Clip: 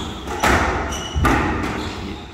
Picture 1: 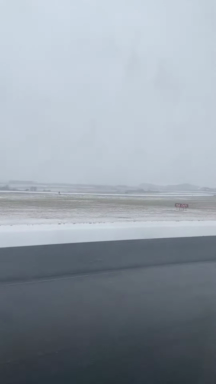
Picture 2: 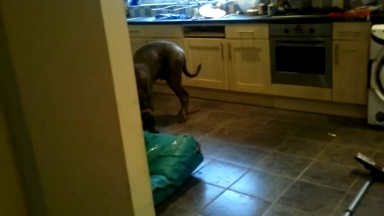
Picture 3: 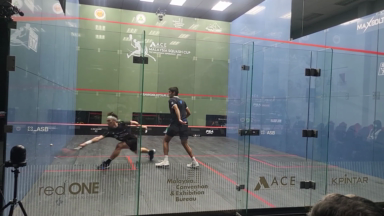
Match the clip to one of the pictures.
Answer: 3